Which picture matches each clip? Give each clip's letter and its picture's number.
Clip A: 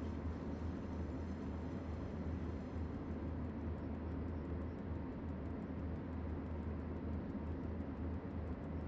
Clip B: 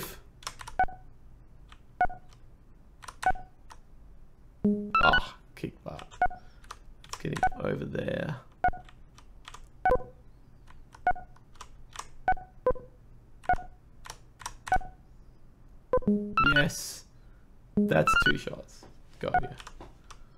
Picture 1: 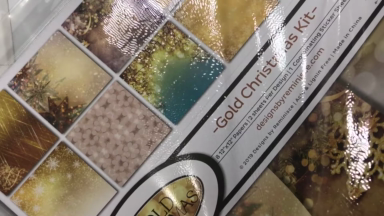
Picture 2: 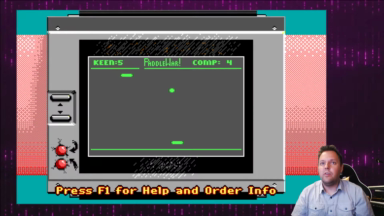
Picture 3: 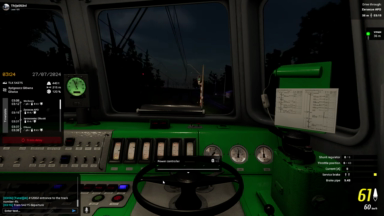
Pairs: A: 3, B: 2